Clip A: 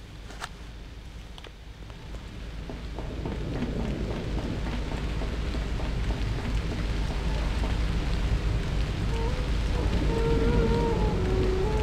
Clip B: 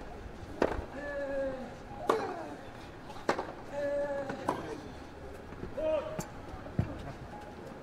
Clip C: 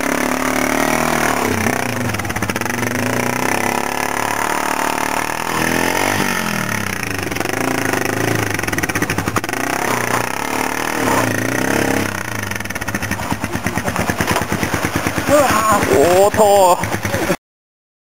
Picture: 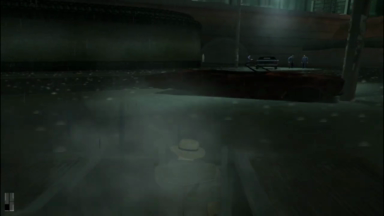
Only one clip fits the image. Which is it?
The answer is A